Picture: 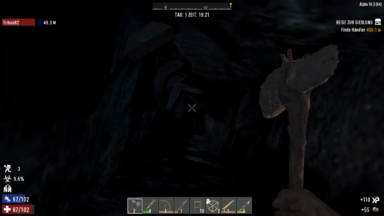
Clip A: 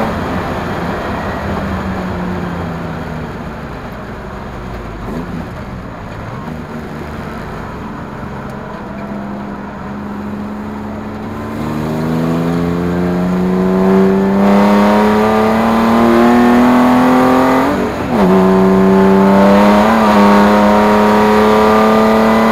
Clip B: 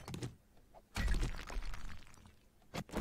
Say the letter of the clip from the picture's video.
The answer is B